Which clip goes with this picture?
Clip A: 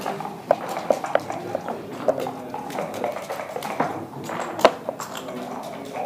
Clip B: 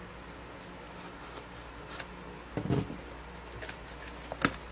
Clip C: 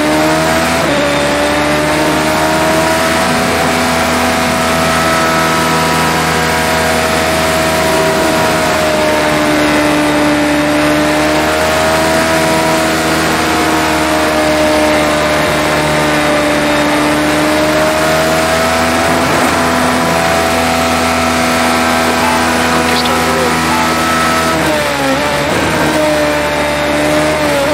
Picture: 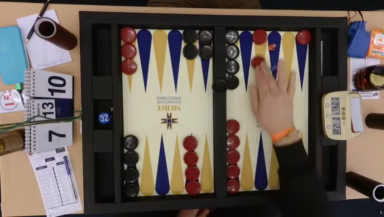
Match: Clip A